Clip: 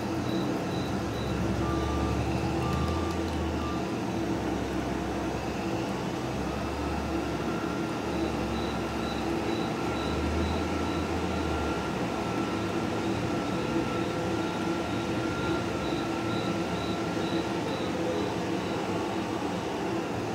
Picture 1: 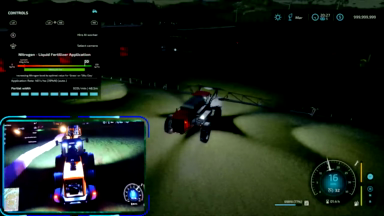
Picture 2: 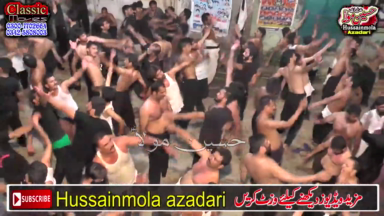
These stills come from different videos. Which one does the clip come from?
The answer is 1